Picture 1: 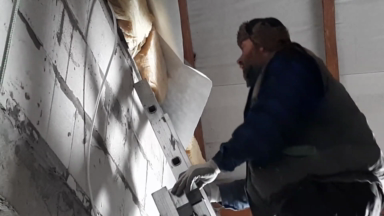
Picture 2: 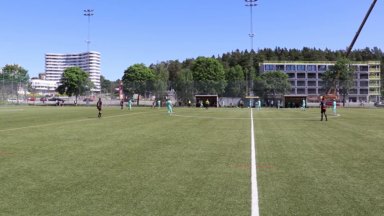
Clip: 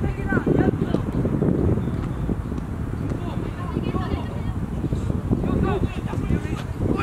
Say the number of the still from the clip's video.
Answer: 2